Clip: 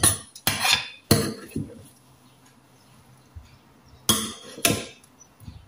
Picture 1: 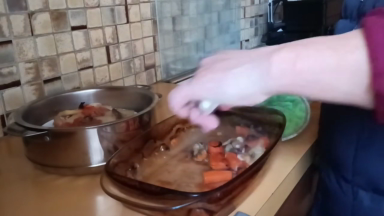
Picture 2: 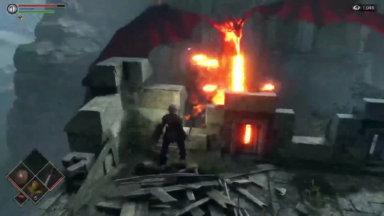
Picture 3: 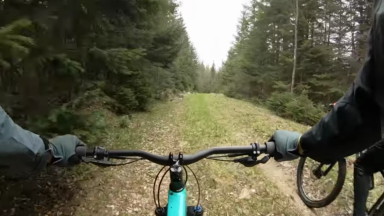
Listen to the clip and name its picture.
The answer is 1